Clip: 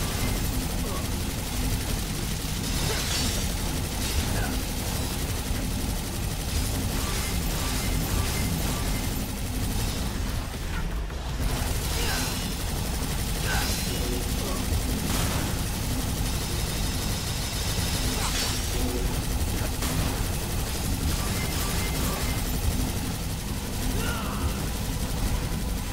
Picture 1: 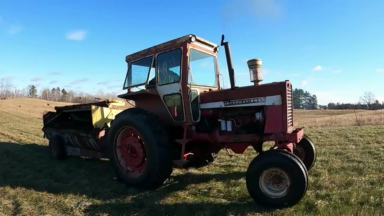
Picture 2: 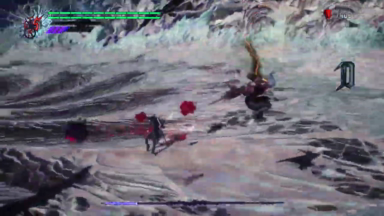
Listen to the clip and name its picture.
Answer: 2